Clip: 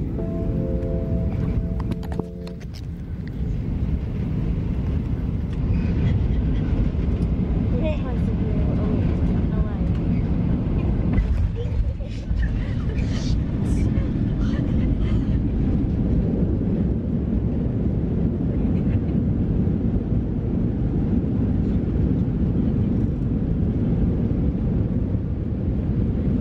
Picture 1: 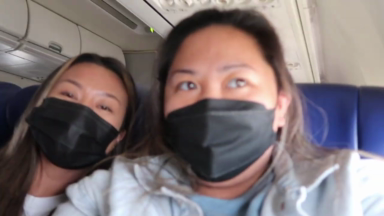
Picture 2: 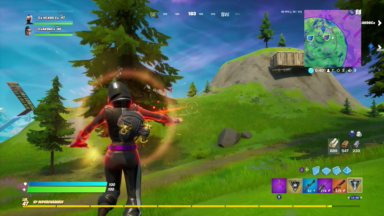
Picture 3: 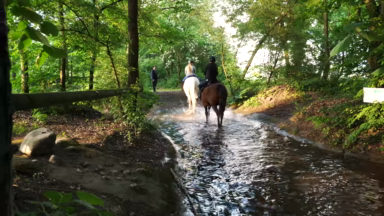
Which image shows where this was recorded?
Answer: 1